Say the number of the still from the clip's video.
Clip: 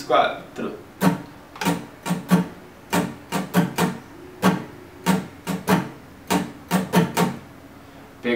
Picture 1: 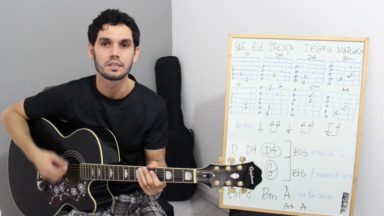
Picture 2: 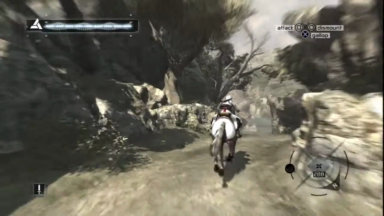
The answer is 1